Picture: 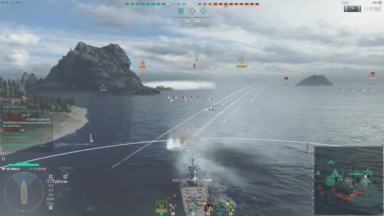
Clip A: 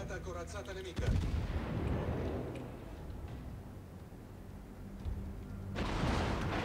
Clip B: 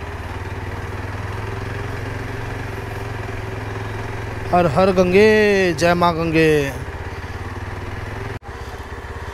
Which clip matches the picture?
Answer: A